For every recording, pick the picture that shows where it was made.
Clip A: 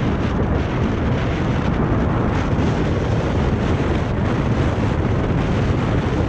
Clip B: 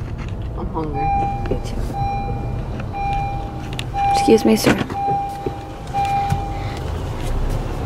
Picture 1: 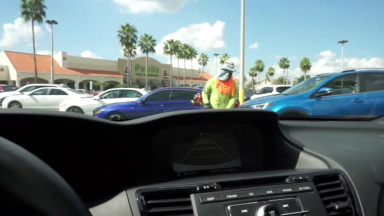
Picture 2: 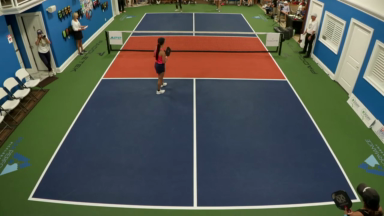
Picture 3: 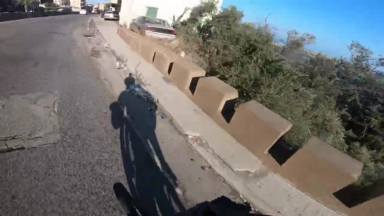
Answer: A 3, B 1